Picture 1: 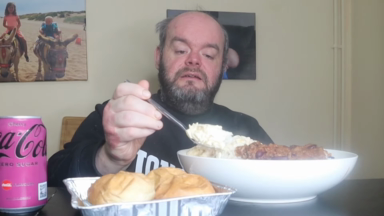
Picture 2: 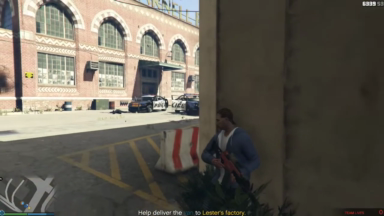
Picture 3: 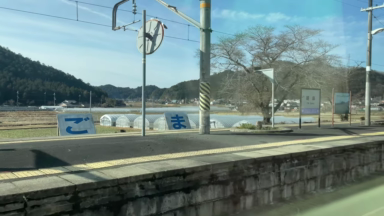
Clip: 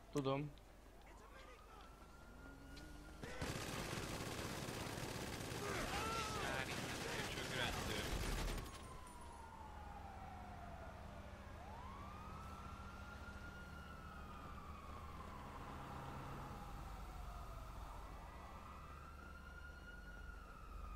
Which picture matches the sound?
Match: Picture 2